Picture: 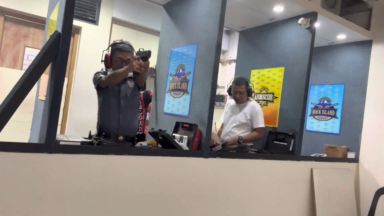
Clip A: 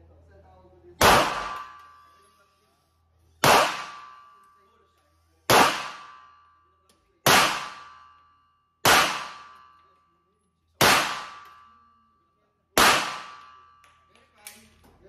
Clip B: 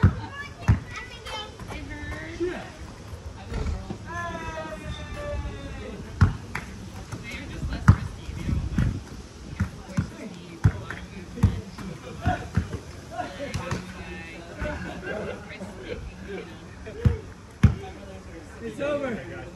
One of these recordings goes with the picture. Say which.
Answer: A